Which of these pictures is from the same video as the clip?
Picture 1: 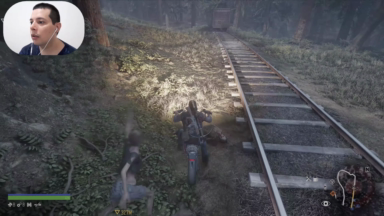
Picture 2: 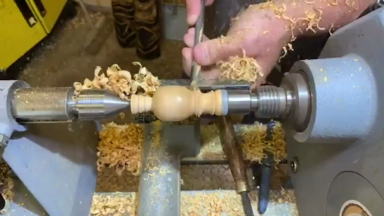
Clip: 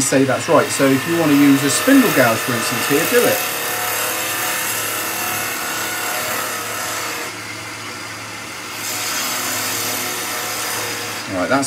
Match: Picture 2